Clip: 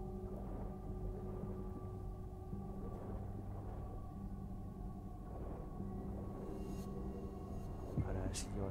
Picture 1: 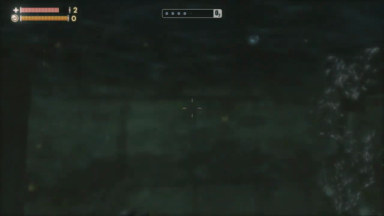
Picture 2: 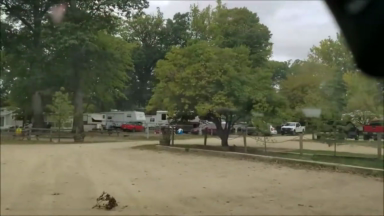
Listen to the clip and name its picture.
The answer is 1